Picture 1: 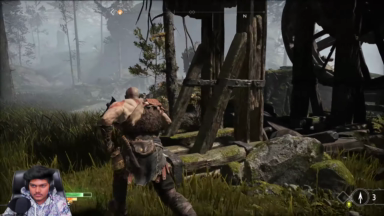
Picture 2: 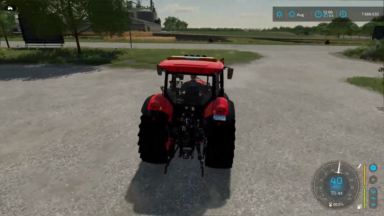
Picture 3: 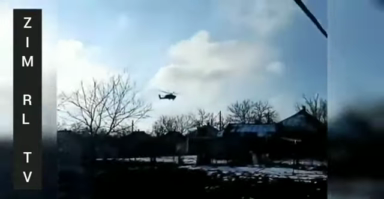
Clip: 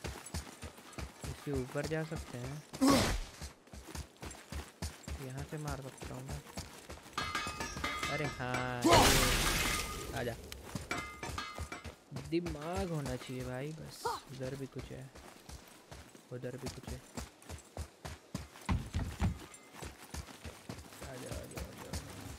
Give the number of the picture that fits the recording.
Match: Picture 1